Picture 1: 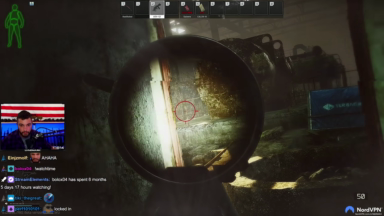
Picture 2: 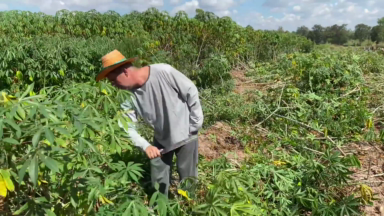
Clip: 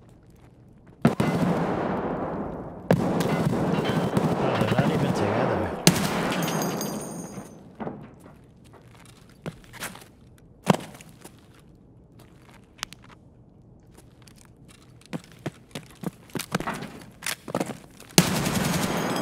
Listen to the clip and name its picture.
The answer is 1